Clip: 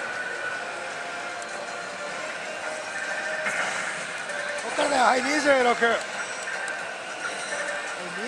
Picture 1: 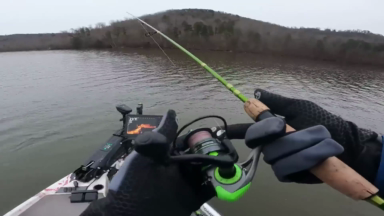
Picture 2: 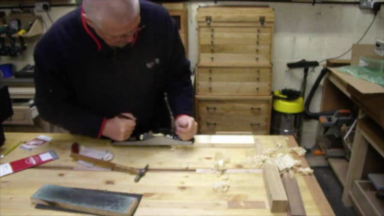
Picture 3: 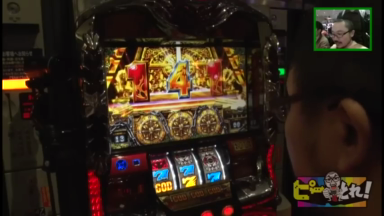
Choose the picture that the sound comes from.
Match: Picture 3